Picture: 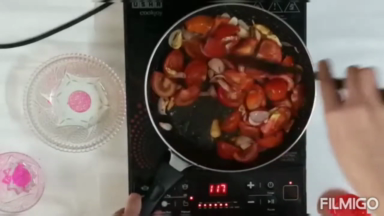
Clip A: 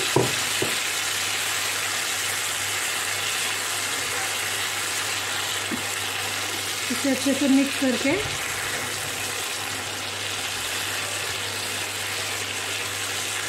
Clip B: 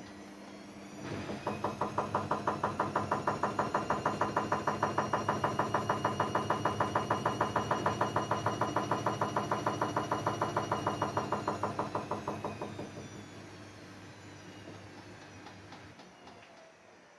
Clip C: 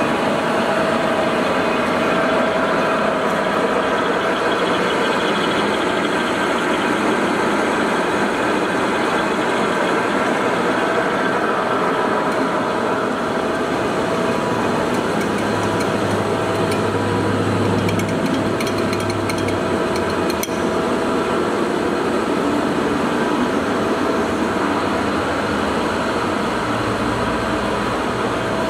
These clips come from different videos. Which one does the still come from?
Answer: A